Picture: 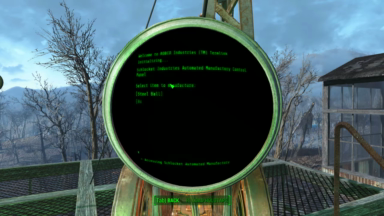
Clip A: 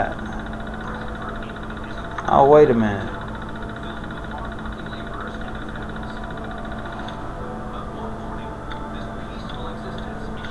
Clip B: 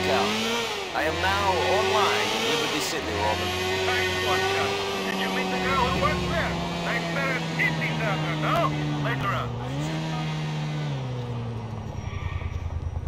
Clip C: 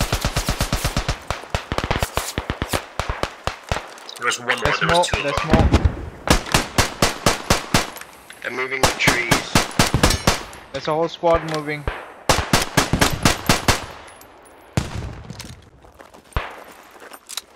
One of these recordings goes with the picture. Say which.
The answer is A